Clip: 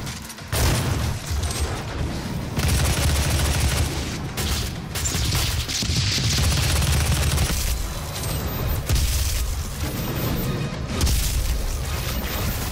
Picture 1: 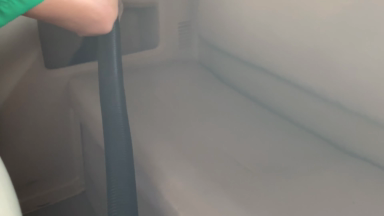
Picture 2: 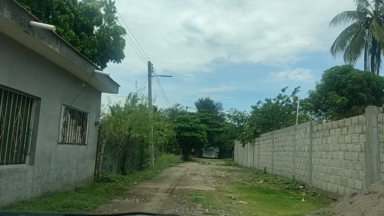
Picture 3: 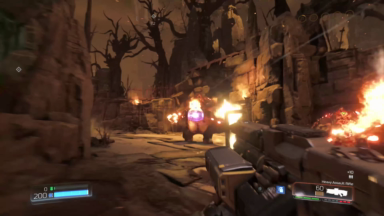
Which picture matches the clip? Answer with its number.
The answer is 3